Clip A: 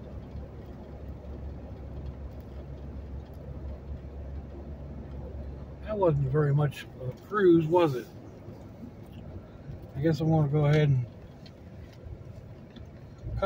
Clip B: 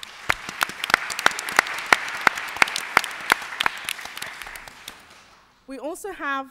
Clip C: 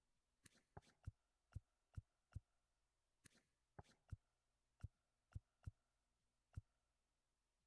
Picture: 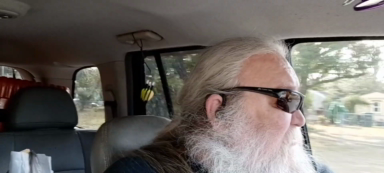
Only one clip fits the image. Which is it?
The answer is A